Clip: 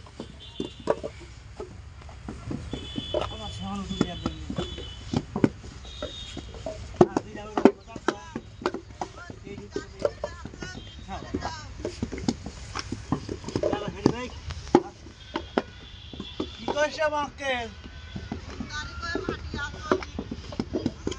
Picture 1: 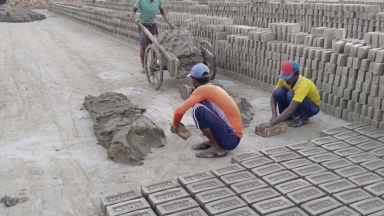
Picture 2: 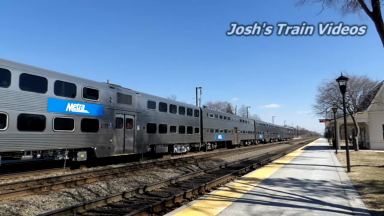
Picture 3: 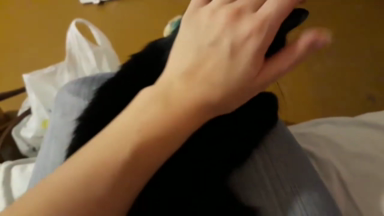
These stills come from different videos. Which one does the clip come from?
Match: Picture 1